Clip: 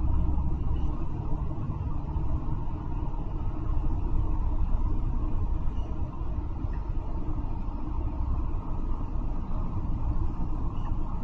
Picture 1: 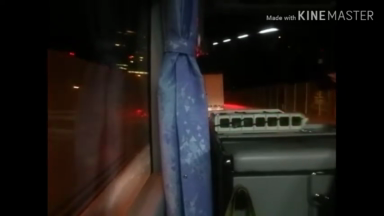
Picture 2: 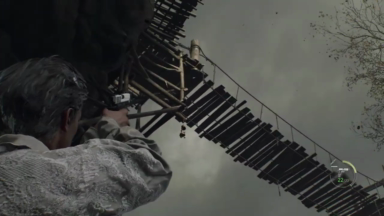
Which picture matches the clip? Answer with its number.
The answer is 1